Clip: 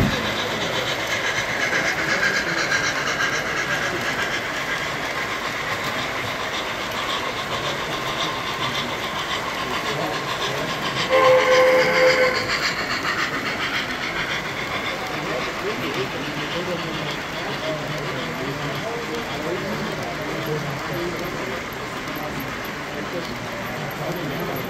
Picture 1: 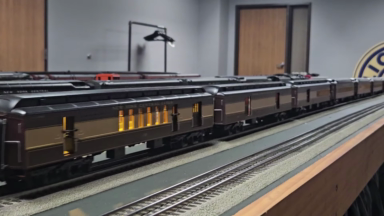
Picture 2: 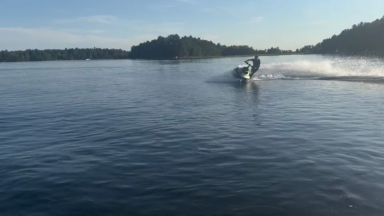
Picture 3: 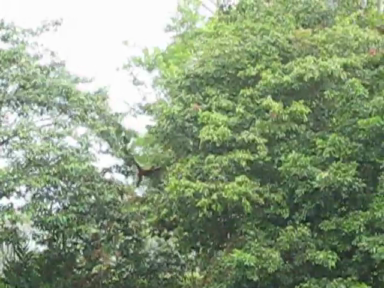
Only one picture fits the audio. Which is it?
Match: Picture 1